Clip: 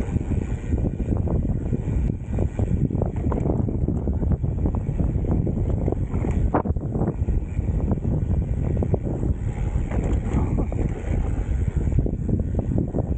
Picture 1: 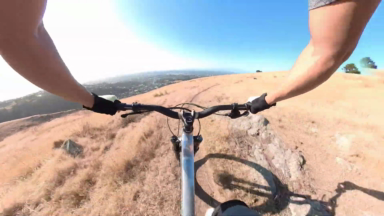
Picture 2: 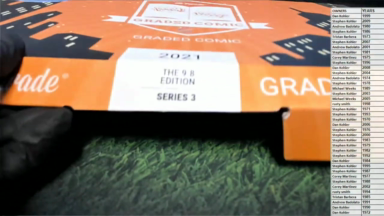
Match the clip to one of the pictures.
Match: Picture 1